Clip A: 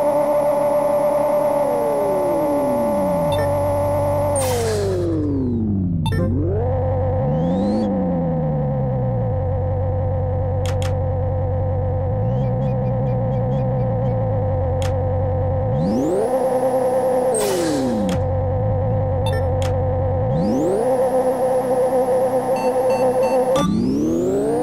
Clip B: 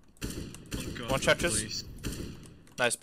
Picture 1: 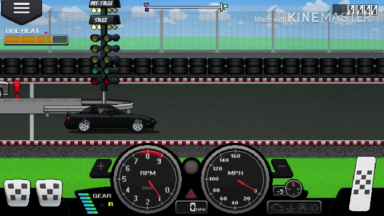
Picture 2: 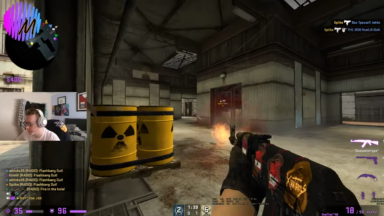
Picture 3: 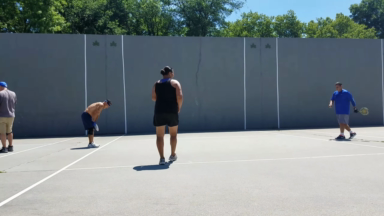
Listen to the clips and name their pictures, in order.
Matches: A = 1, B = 2